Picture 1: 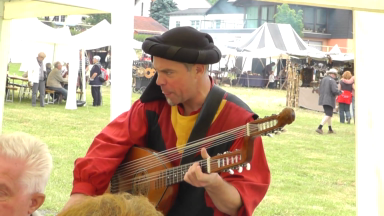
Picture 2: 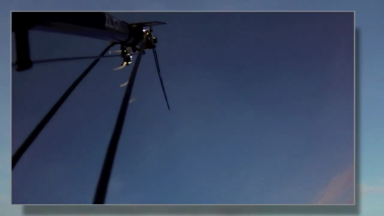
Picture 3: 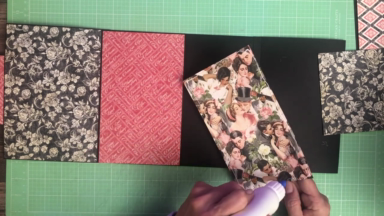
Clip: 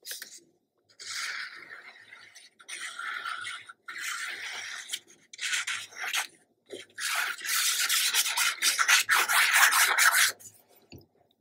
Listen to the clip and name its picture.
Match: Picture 3